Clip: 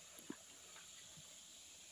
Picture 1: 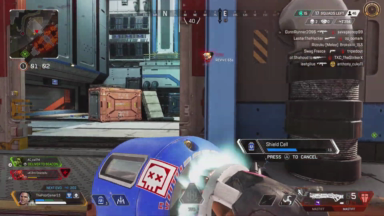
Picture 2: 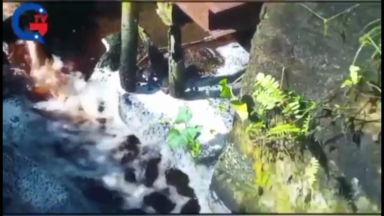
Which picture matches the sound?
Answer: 2